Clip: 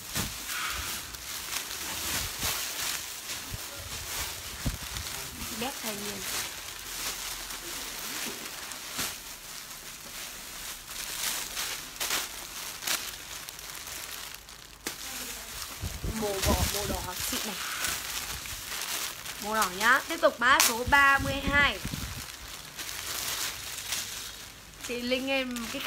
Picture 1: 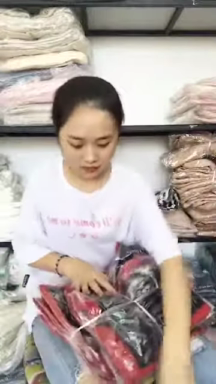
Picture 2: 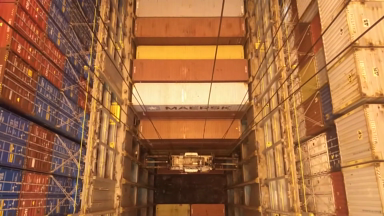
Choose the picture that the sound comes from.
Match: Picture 1